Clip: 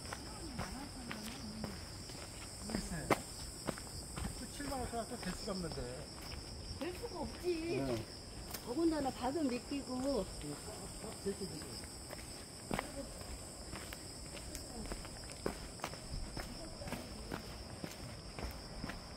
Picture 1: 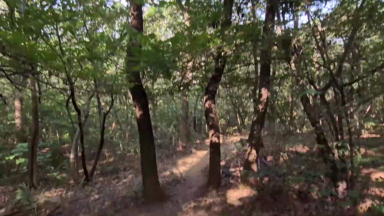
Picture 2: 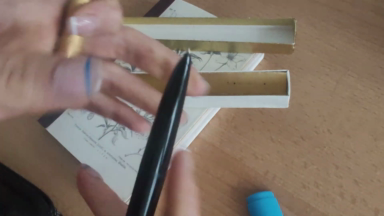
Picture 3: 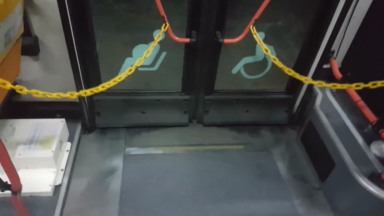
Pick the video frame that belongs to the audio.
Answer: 1